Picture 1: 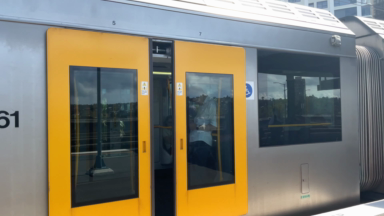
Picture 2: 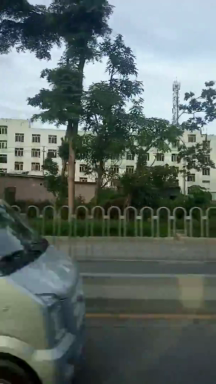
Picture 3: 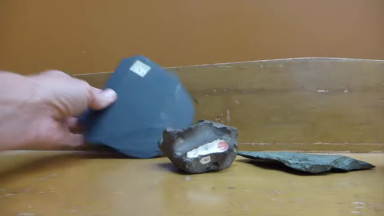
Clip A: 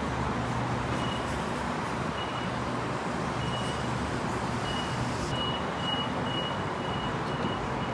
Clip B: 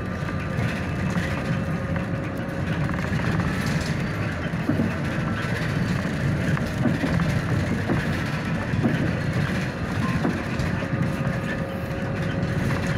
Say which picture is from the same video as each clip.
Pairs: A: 1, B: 2